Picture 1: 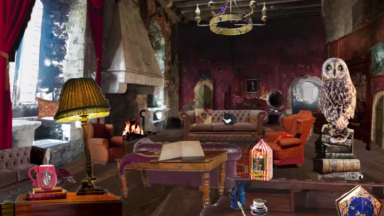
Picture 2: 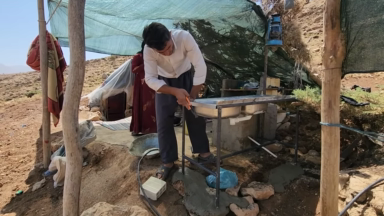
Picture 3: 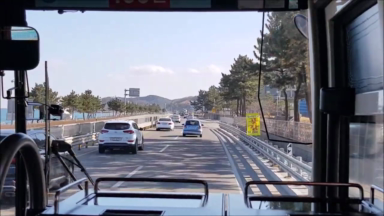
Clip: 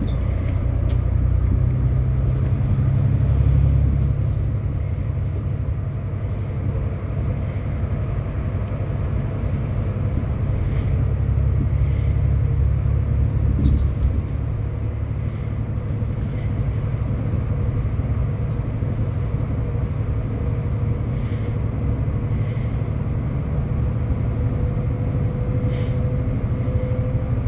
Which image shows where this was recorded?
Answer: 3